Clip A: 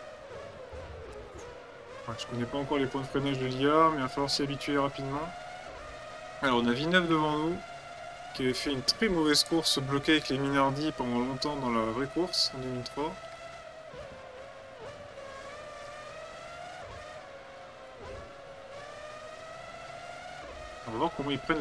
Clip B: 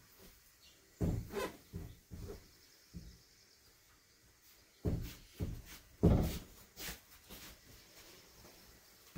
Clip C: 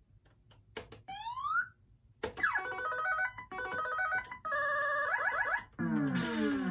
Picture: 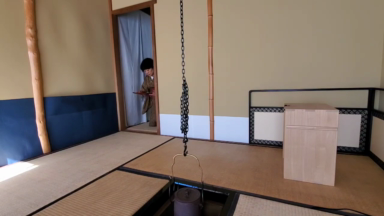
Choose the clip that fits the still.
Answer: B